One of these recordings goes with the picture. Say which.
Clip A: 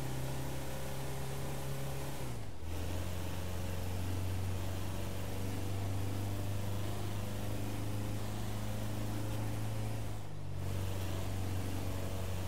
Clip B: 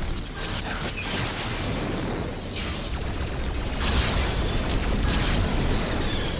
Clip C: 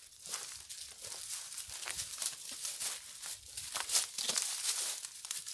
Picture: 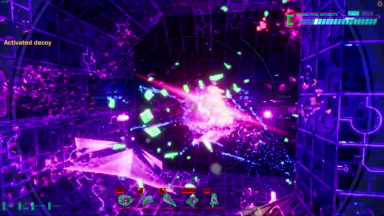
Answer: B